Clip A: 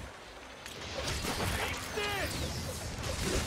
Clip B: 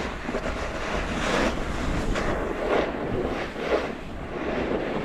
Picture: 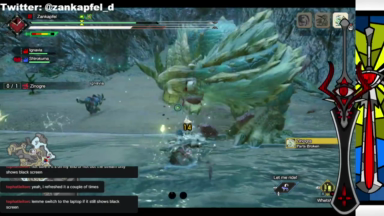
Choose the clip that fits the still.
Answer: A